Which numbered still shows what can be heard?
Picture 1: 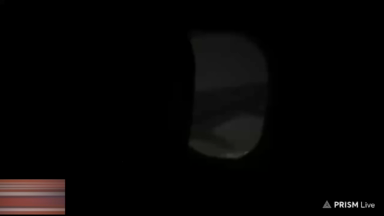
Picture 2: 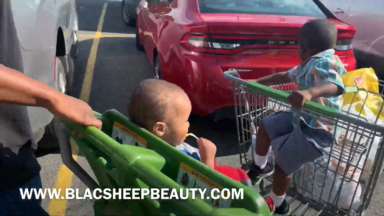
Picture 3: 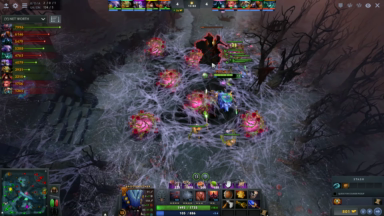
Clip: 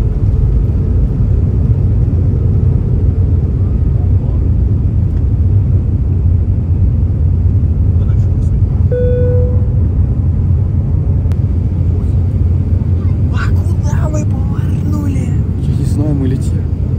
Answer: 1